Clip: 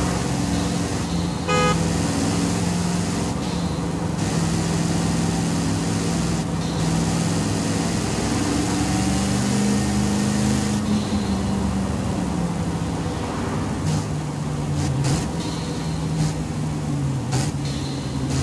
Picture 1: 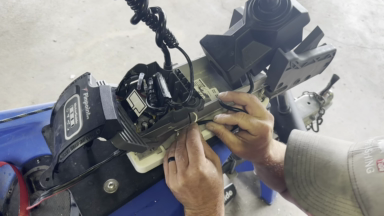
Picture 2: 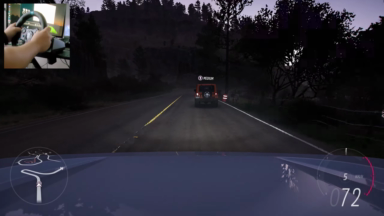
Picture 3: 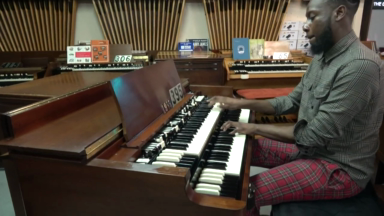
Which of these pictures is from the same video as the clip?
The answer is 2